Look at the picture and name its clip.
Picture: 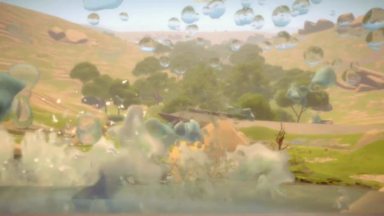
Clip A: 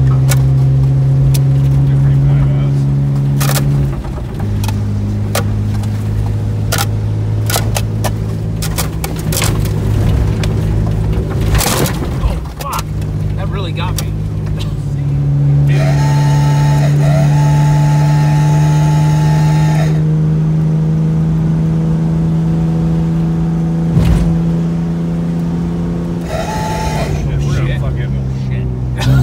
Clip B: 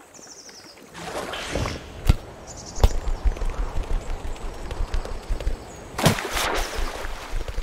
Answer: B